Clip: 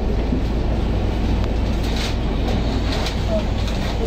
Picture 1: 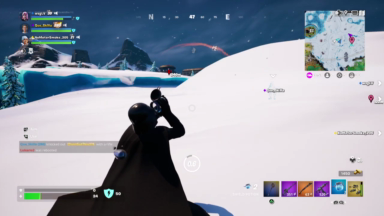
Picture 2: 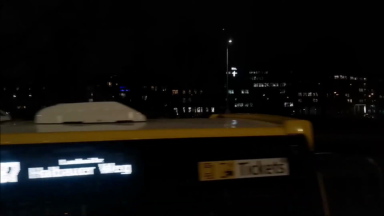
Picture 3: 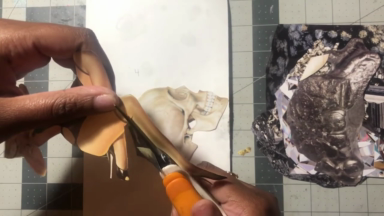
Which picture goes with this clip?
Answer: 2